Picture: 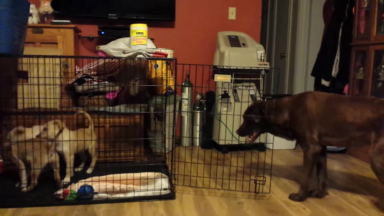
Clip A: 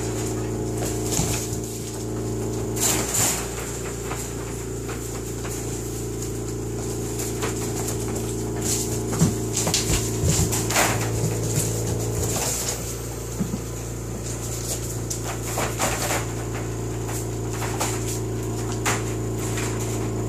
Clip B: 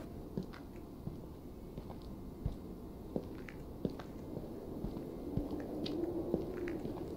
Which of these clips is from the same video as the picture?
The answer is A